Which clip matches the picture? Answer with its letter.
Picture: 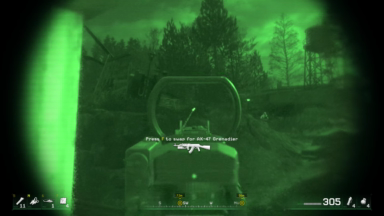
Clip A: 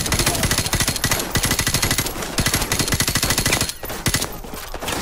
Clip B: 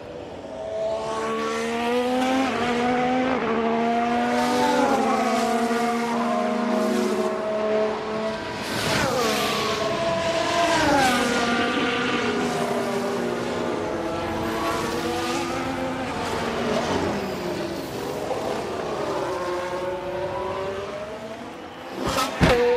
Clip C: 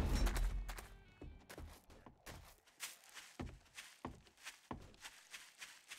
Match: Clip A